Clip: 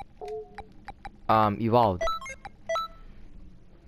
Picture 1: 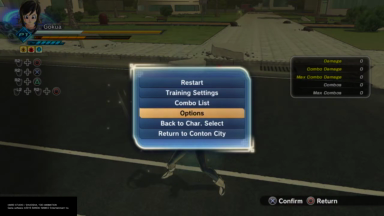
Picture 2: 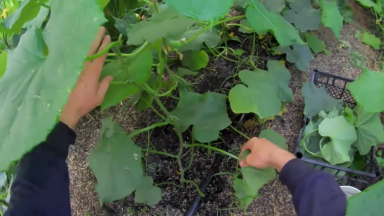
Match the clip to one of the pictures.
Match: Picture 1